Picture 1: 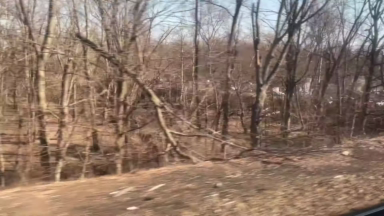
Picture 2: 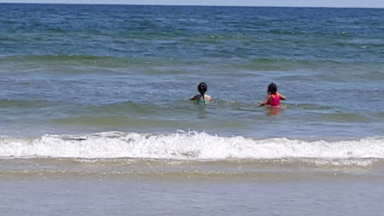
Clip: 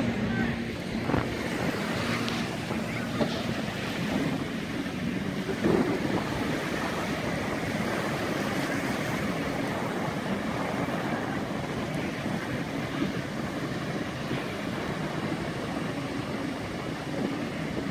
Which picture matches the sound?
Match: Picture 2